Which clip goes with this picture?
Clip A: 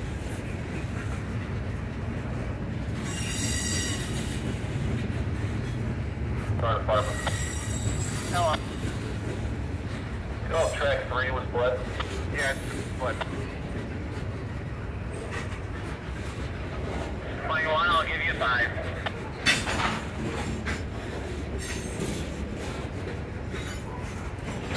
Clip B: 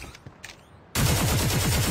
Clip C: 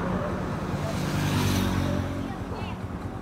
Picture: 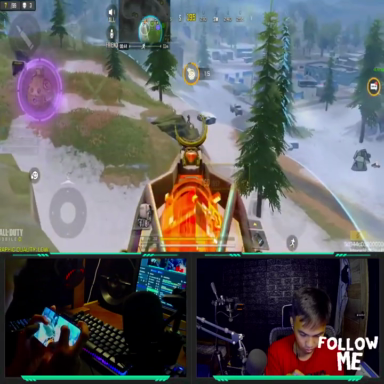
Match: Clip B